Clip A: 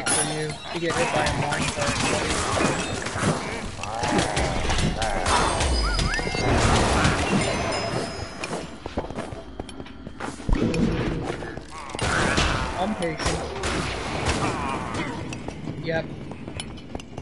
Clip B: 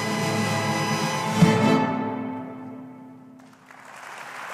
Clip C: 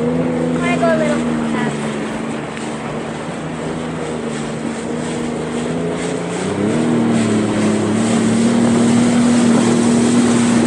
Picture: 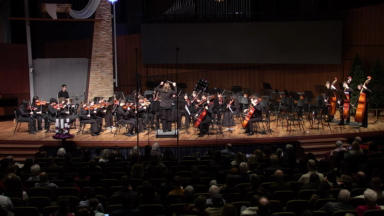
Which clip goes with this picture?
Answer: B